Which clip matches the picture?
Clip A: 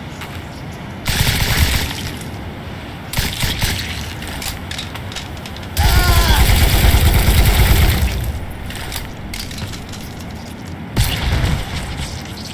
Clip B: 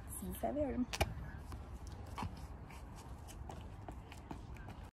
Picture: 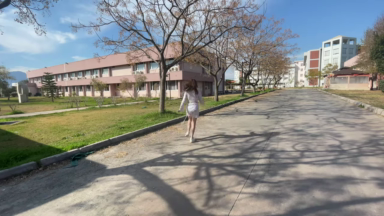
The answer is B